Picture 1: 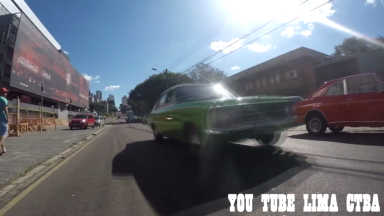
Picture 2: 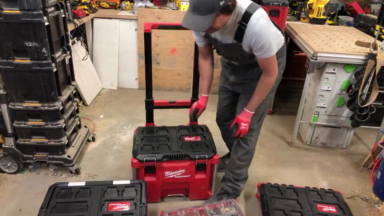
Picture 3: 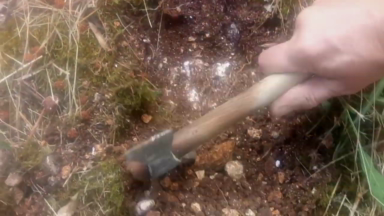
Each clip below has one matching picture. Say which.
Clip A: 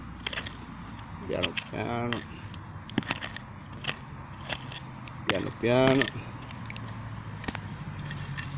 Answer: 3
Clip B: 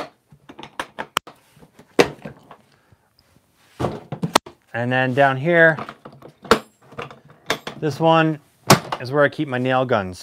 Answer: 2